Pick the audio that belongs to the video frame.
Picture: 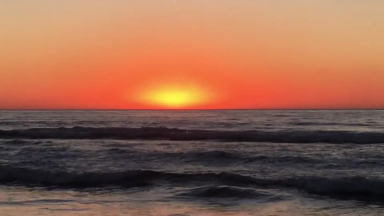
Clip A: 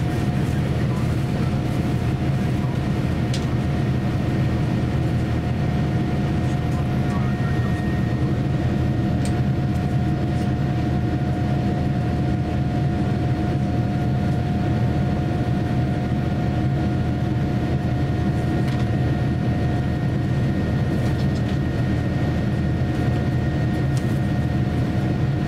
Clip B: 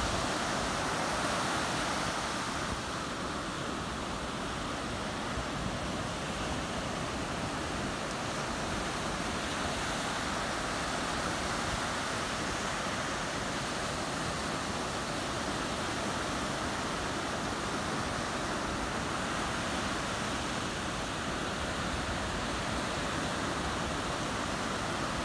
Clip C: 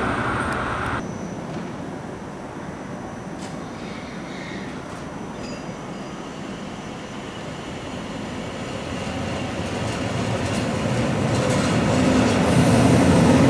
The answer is B